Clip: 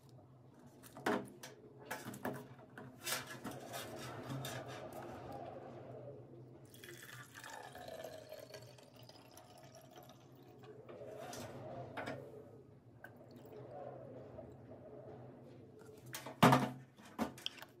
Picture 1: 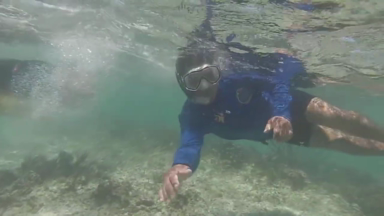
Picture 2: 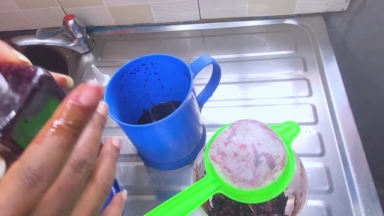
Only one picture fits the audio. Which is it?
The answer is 2